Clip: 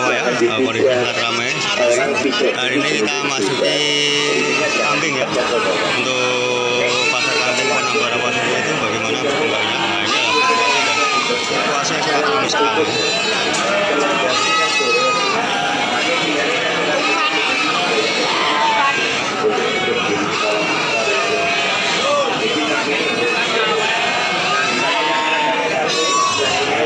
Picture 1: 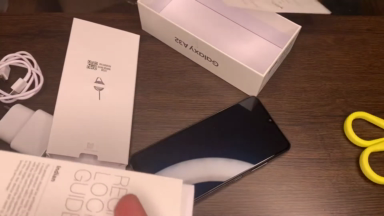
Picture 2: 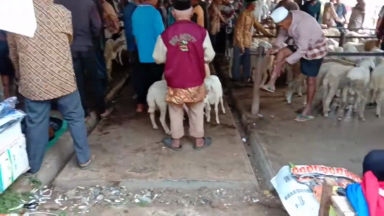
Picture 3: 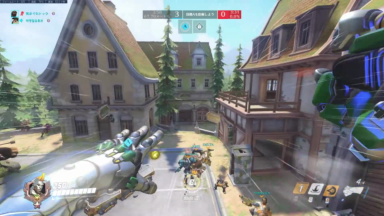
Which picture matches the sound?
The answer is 2